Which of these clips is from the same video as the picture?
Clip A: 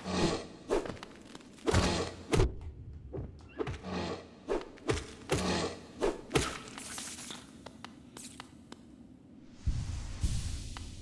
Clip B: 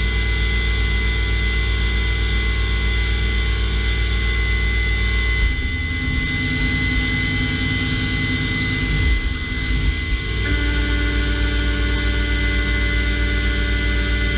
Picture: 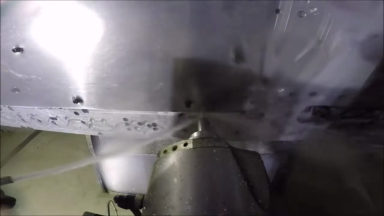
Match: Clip B